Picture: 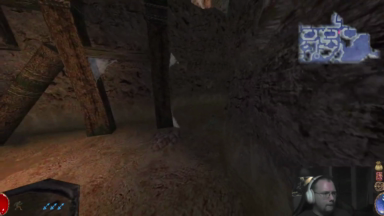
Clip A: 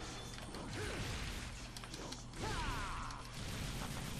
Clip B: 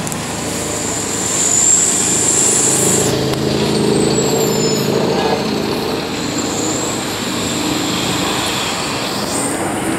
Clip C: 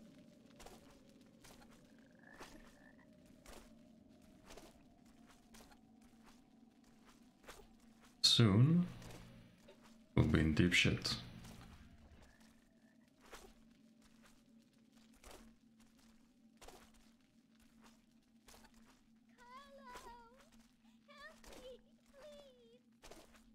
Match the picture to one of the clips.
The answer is C